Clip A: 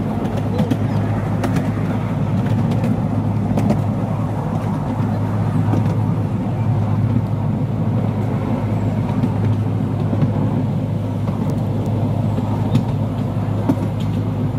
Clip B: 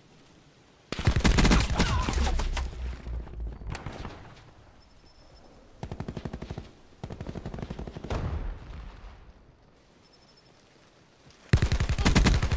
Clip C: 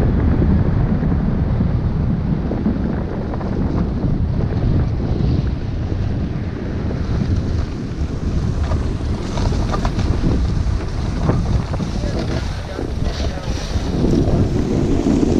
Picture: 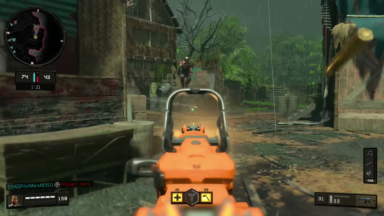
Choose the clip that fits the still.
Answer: B